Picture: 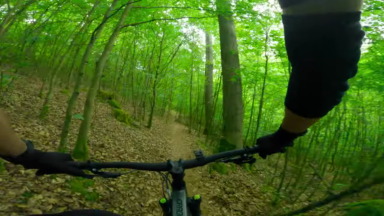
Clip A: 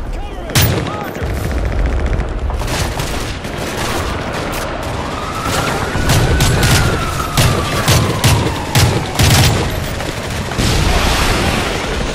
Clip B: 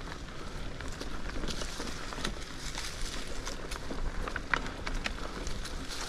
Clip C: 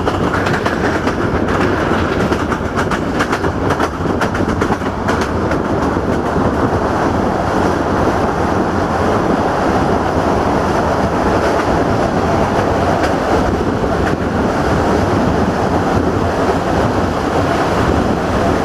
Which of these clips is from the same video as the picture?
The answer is B